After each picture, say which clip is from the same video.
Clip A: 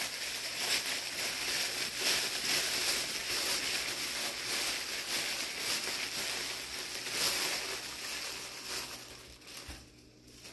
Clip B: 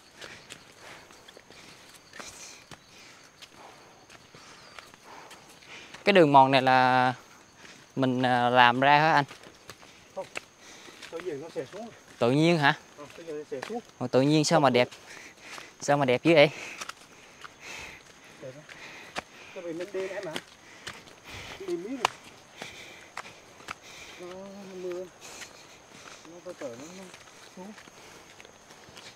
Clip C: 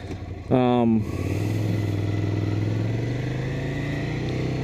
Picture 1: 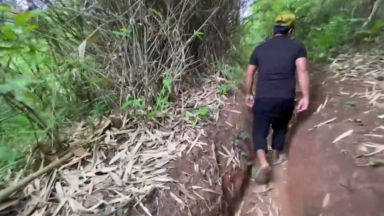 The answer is B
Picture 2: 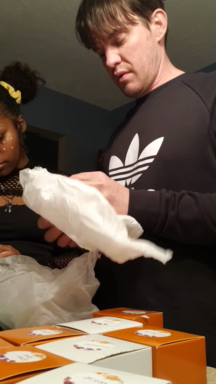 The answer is A